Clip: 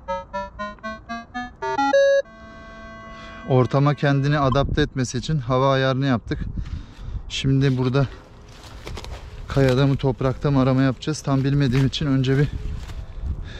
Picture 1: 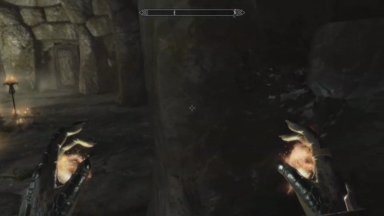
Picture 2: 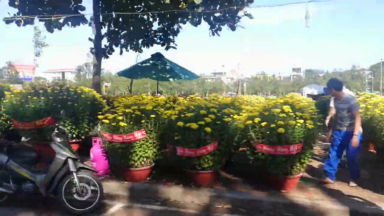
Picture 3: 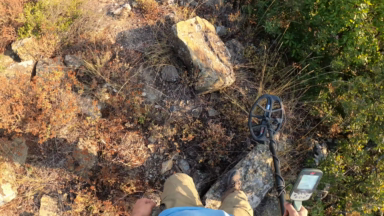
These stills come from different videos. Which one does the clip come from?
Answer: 3